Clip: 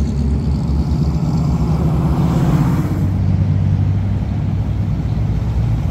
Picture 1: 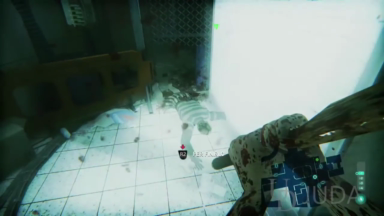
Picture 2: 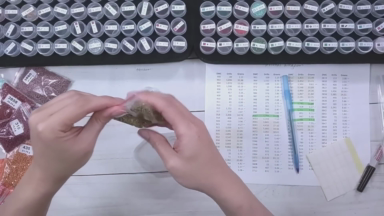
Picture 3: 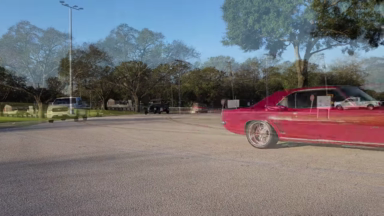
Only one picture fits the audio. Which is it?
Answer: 3